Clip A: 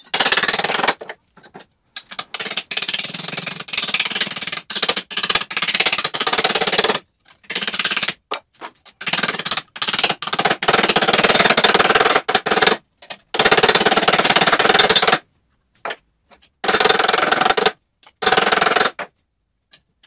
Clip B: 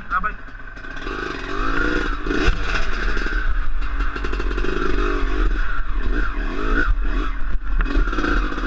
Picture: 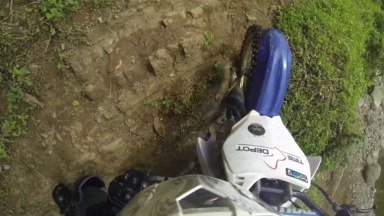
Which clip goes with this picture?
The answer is B